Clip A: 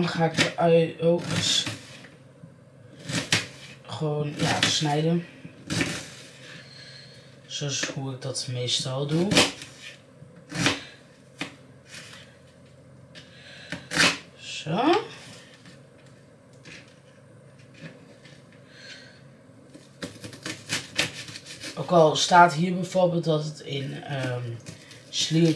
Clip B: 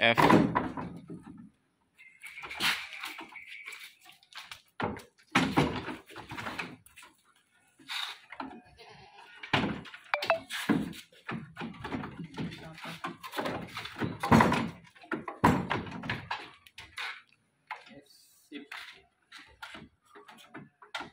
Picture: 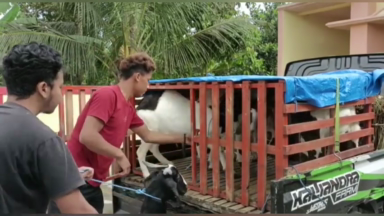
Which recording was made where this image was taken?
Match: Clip B